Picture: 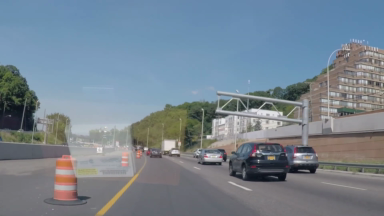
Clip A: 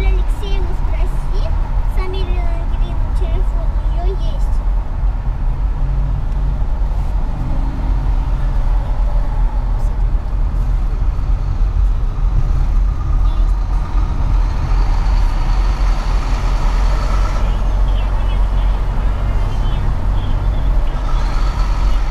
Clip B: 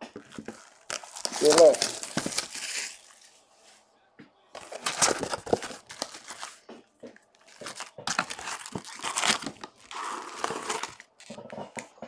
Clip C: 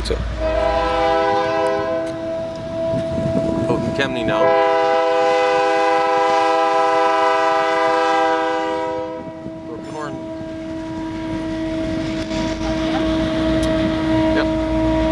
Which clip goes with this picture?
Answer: A